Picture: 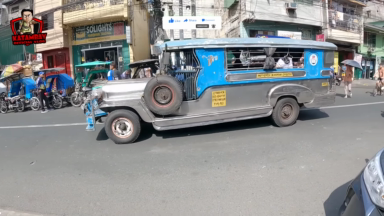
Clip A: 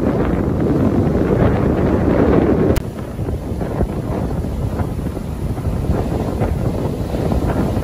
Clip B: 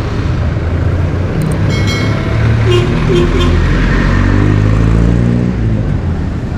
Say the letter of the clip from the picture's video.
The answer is B